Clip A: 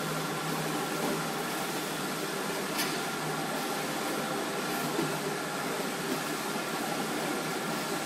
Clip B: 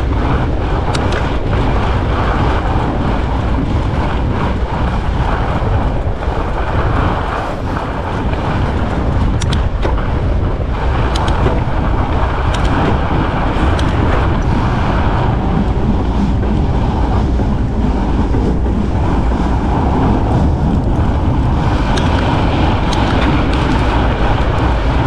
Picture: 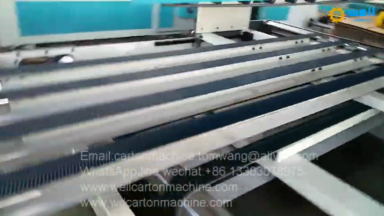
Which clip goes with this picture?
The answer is A